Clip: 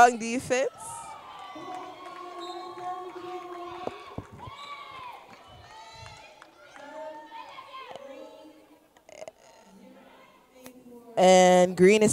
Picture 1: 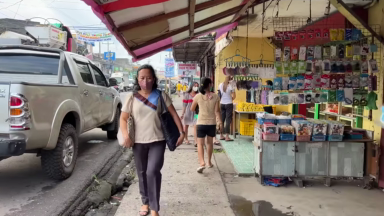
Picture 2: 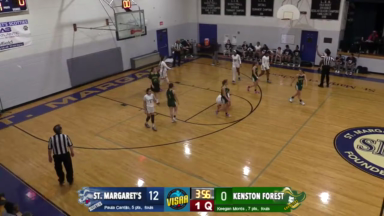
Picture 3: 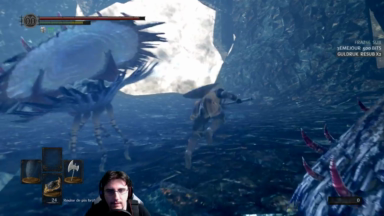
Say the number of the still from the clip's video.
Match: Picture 2